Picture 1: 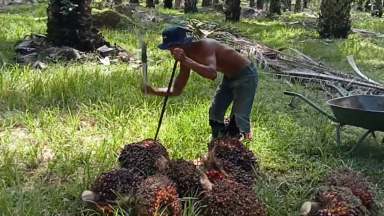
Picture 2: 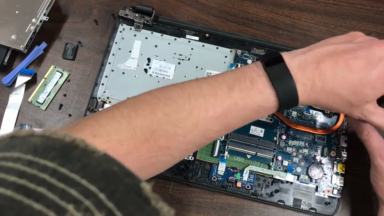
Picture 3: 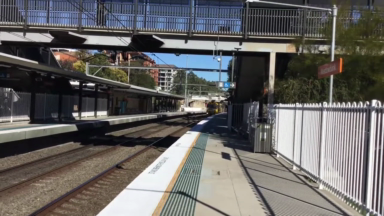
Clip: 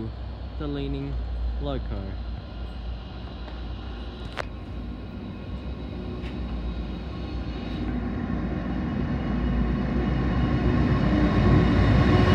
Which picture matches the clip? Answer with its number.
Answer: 3